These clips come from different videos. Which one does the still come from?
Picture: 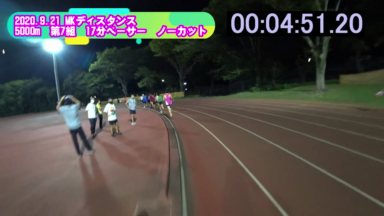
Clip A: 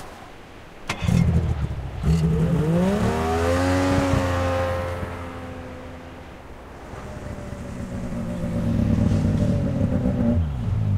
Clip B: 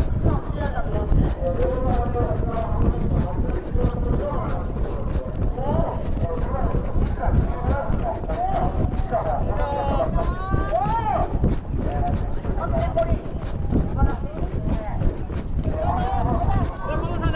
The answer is B